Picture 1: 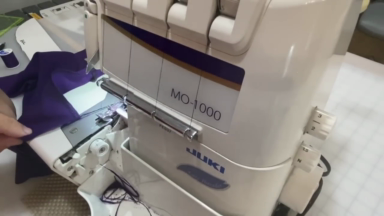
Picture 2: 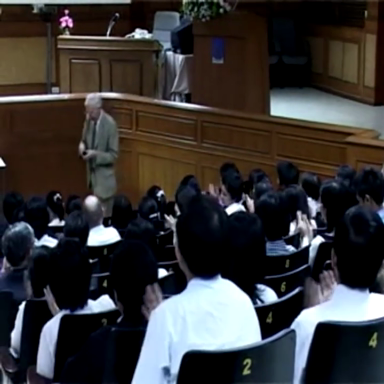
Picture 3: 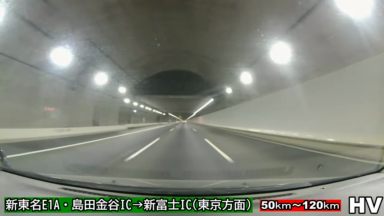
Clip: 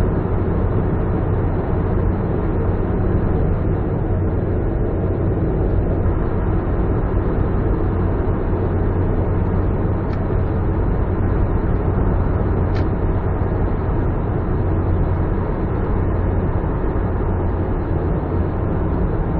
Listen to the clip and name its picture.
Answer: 3